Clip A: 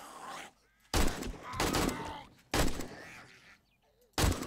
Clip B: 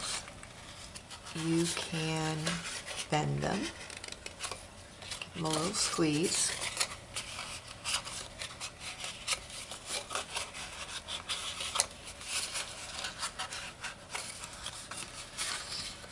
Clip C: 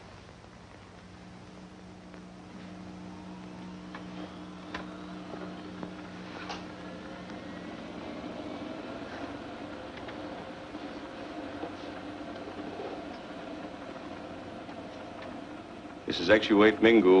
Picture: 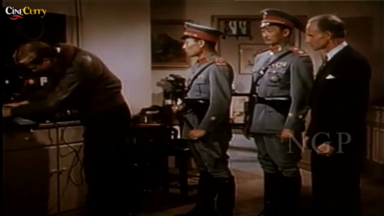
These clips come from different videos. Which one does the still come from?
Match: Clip C